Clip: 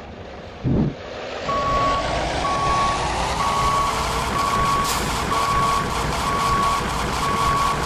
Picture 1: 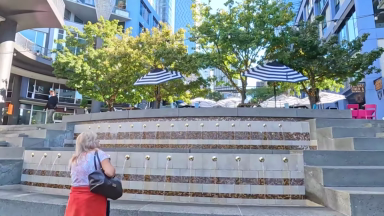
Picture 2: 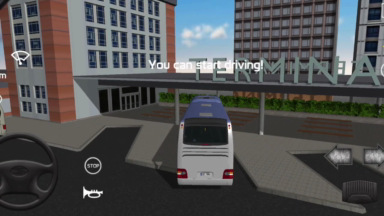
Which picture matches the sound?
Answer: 2